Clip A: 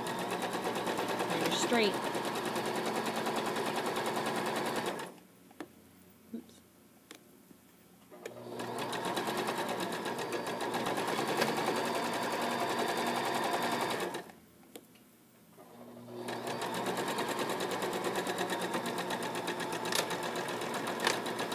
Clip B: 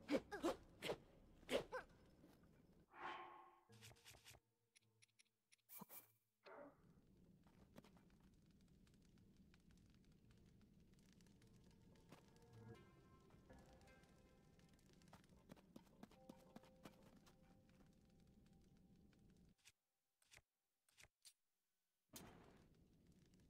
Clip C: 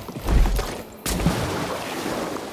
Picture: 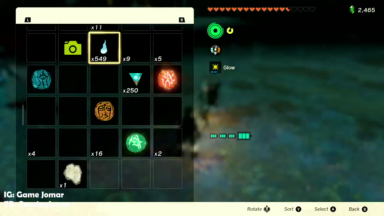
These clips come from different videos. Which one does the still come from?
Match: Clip B